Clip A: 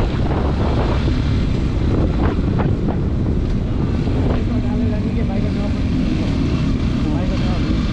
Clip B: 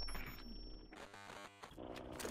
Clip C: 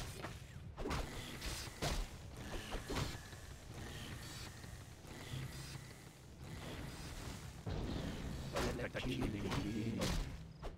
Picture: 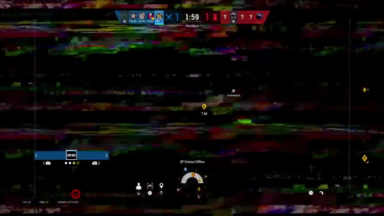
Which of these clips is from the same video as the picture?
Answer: B